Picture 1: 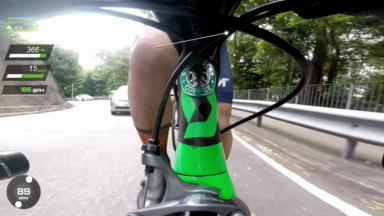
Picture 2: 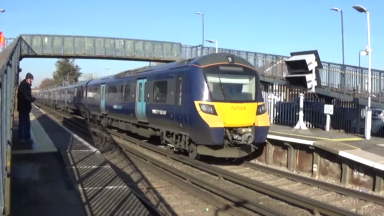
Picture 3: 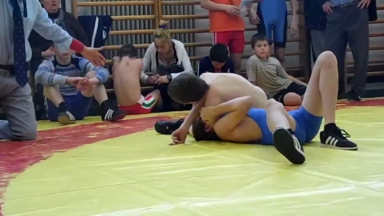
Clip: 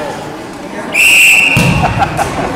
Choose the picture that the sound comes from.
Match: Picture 3